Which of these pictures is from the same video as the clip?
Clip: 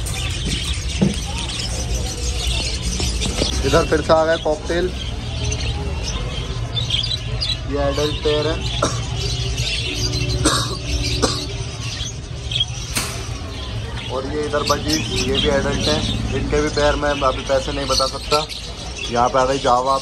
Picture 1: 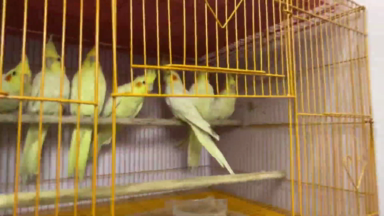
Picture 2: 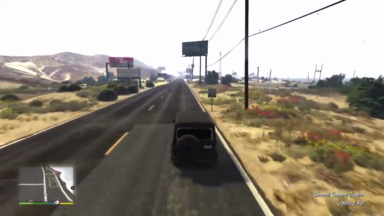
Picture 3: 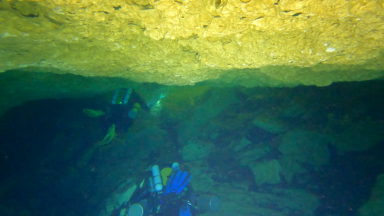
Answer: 1